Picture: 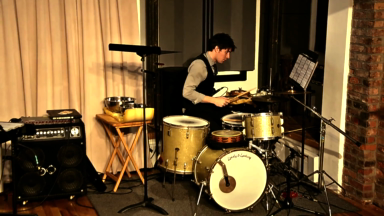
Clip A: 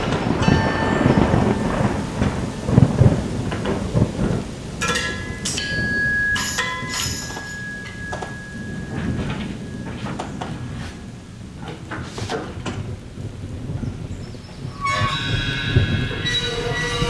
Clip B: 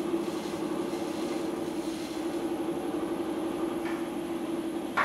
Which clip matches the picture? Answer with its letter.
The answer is A